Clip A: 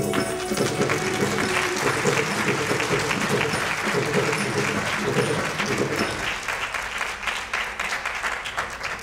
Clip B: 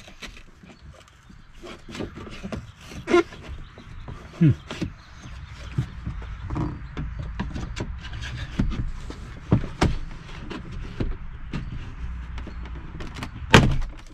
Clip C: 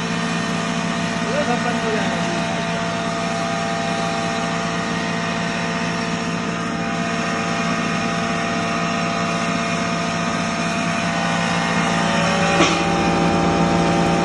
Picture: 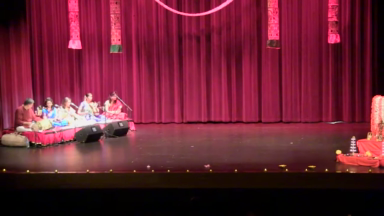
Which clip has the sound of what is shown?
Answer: A